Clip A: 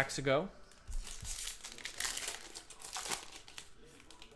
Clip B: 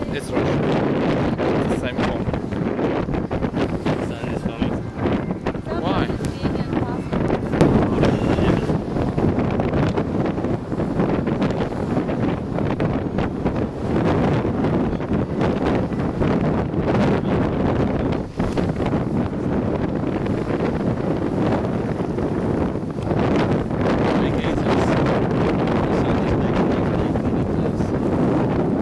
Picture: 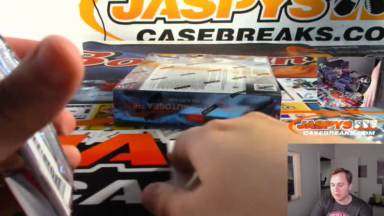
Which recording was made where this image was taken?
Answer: A